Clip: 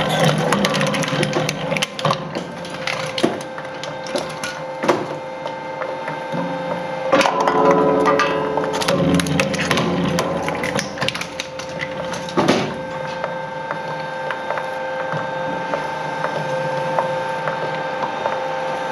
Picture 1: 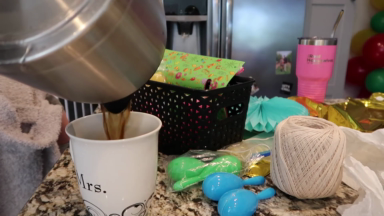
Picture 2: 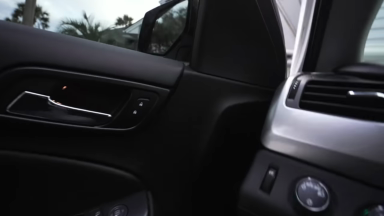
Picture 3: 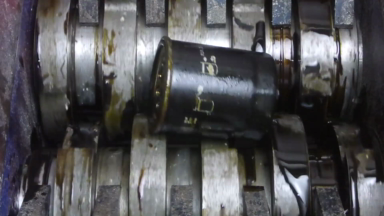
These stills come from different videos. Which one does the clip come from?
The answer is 3